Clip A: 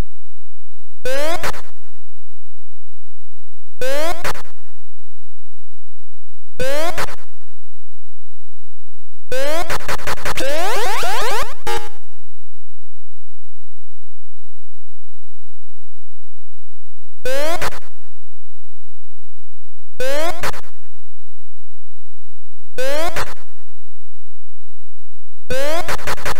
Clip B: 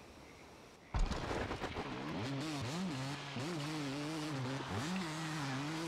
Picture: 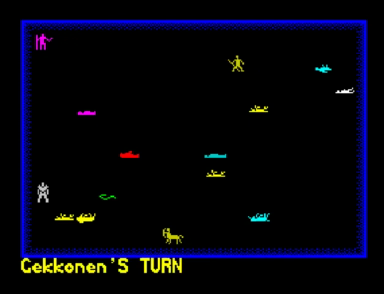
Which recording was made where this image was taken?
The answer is A